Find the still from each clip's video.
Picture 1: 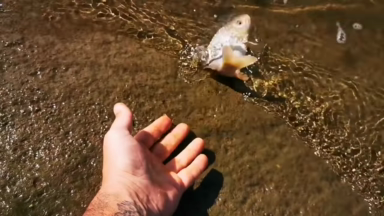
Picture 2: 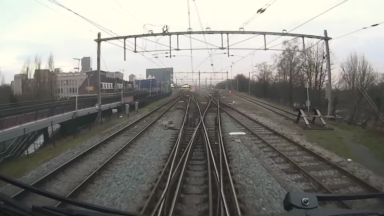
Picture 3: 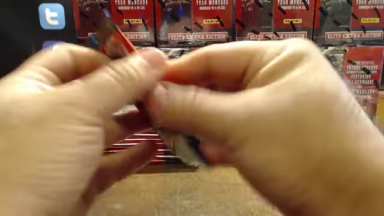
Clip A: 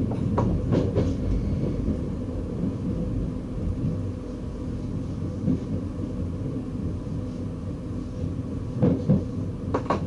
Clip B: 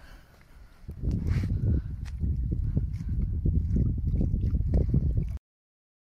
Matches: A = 2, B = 1